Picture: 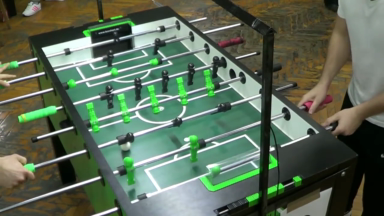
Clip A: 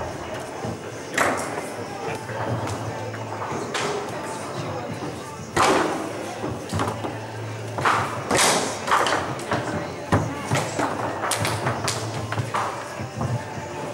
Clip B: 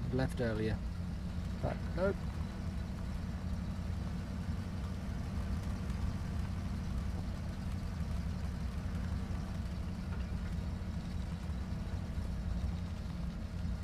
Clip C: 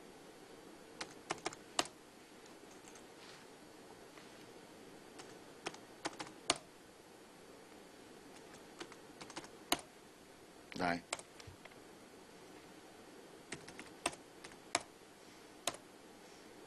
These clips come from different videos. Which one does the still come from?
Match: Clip A